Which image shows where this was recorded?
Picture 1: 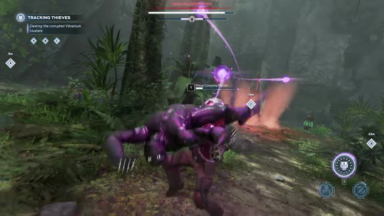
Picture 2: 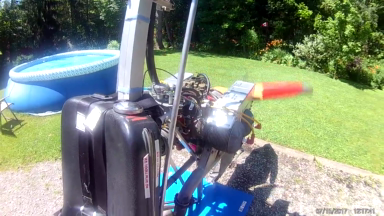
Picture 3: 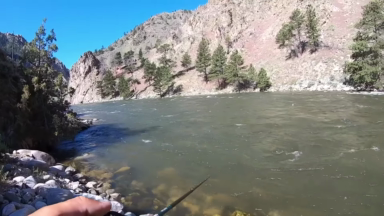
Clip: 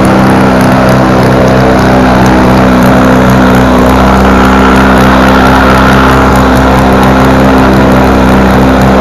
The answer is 2